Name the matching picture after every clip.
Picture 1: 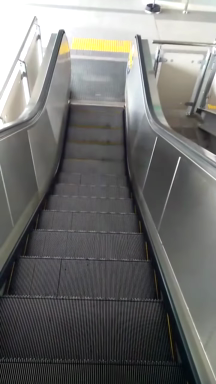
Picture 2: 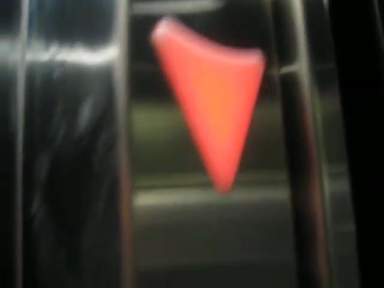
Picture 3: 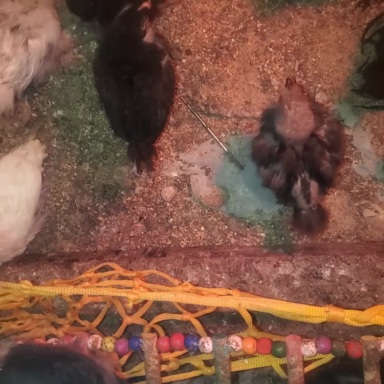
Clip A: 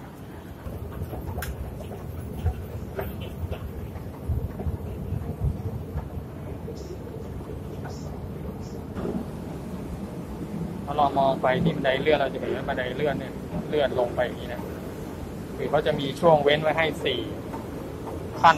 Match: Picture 1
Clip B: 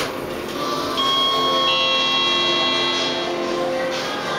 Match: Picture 2